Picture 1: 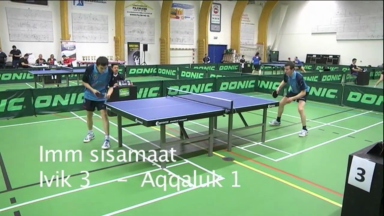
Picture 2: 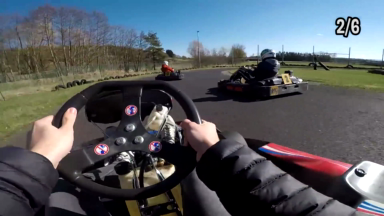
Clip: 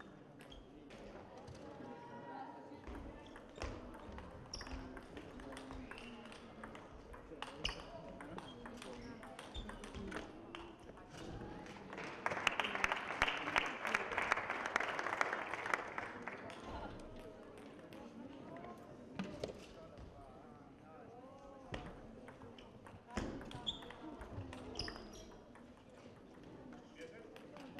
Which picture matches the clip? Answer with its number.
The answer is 1